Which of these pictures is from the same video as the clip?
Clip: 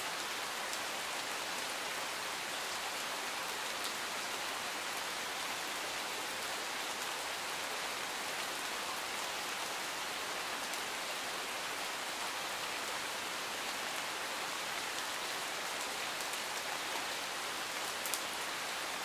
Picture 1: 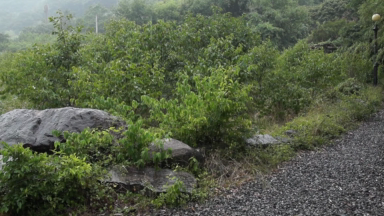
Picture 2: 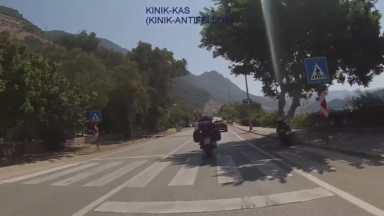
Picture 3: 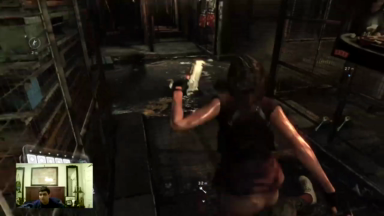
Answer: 1